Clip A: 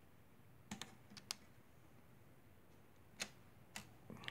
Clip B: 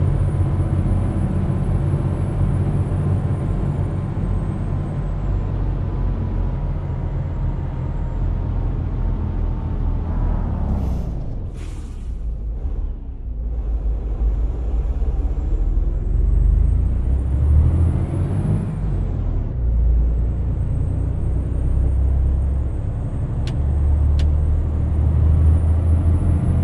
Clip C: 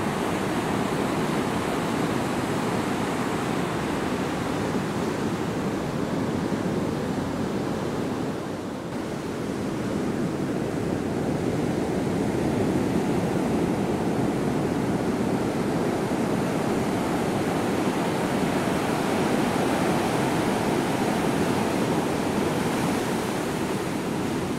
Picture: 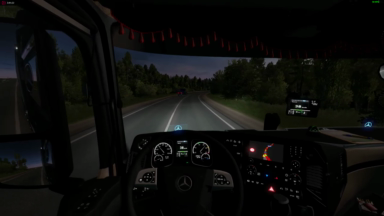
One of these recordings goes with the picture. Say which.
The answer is B